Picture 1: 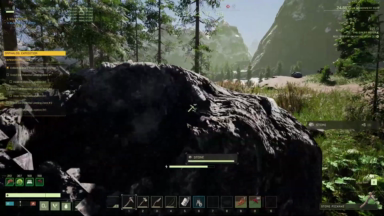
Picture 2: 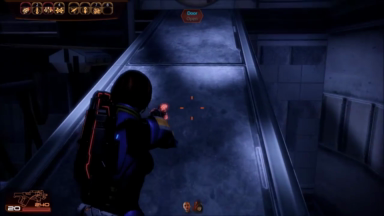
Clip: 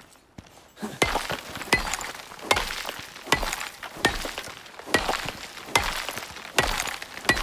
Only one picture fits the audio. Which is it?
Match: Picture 1